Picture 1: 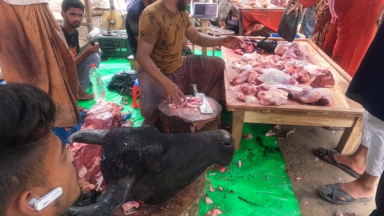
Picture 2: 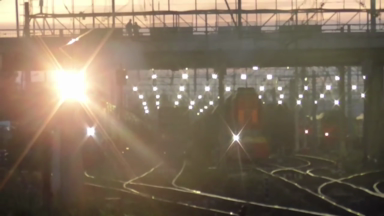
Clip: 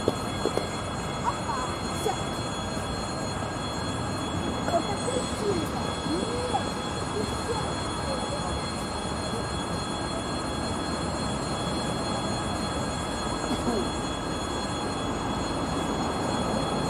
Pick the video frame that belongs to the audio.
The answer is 2